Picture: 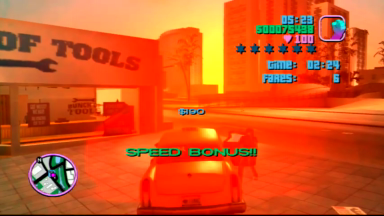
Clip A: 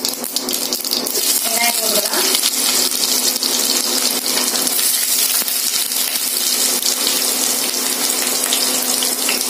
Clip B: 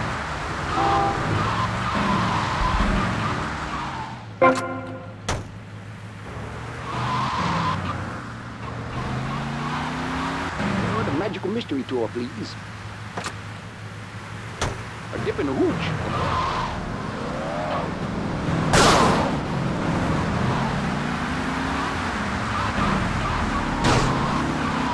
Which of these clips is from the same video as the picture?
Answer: B